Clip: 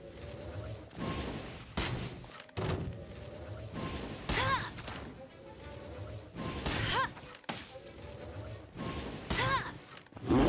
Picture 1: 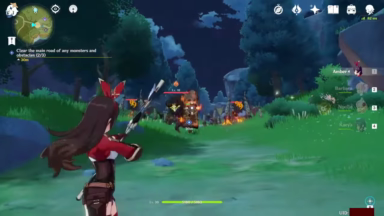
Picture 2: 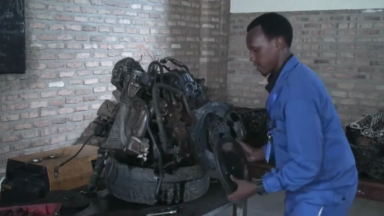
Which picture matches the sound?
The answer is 1